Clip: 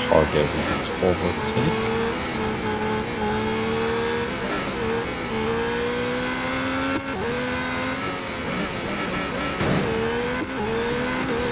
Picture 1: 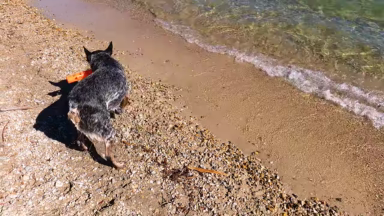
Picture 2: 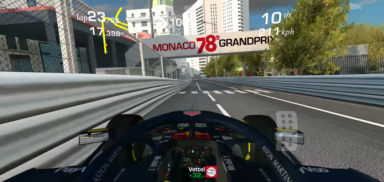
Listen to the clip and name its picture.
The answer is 2